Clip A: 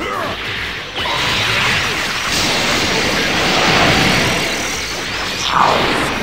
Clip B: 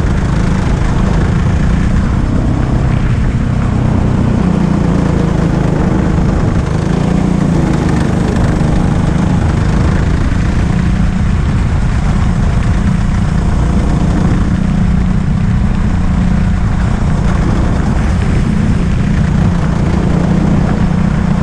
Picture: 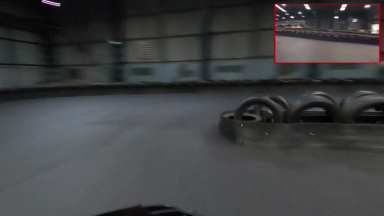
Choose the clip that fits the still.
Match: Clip B